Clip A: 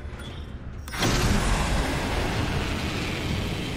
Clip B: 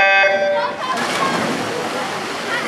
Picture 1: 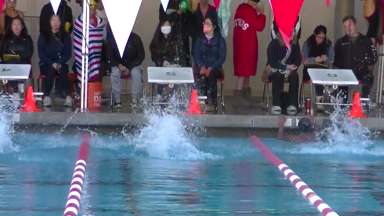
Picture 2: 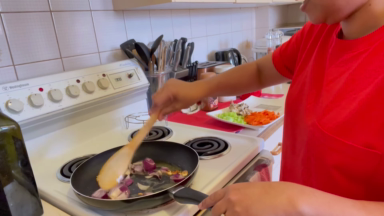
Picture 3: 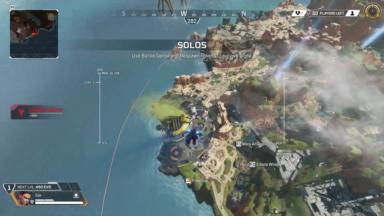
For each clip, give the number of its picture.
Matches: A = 3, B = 1